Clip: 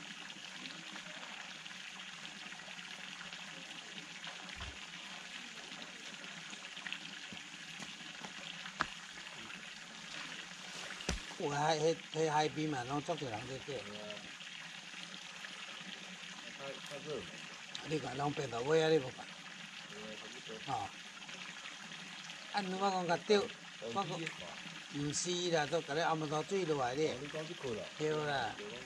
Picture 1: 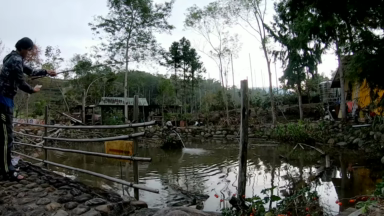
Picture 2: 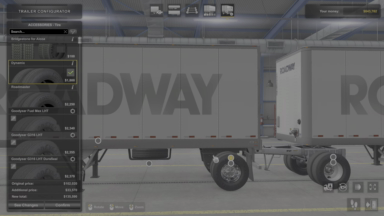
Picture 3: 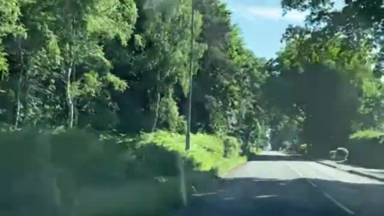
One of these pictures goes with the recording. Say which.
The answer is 1